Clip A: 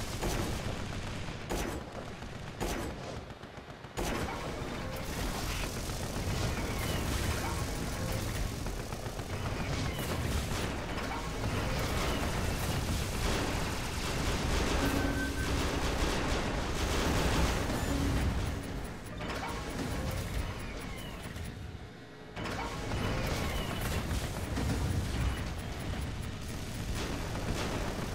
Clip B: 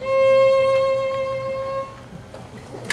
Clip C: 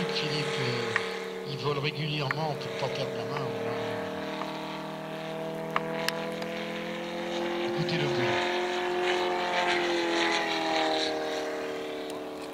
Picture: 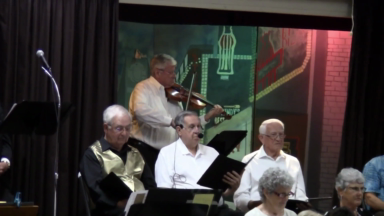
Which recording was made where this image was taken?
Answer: B